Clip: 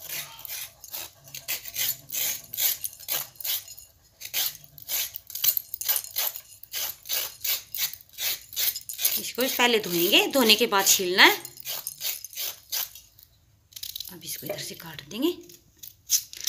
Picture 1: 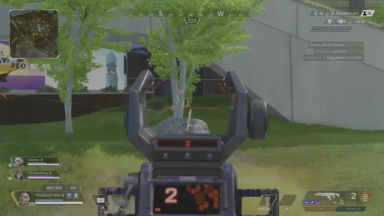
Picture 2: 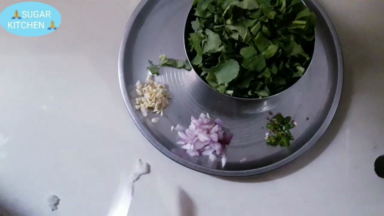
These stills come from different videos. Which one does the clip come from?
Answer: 2